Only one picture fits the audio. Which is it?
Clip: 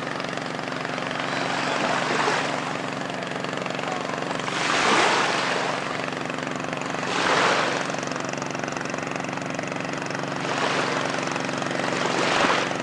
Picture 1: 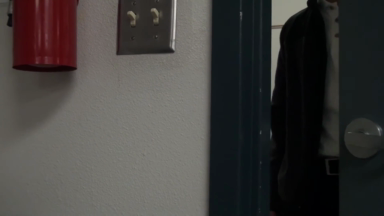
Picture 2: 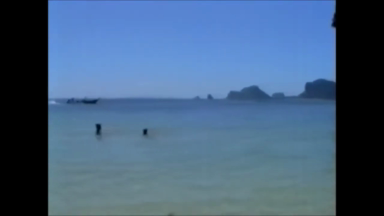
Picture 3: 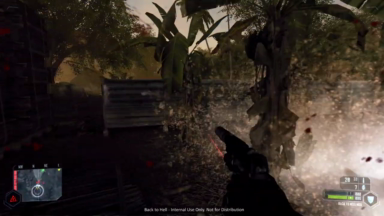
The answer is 2